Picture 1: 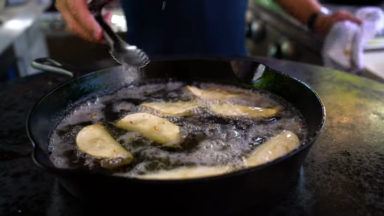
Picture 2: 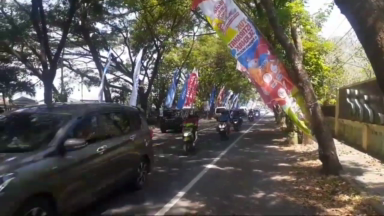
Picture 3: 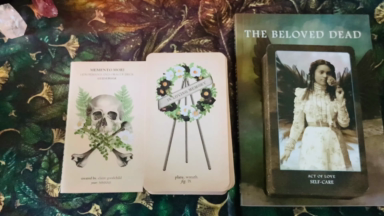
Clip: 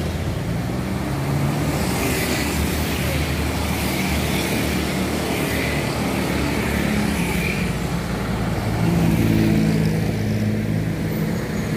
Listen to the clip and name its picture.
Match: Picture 2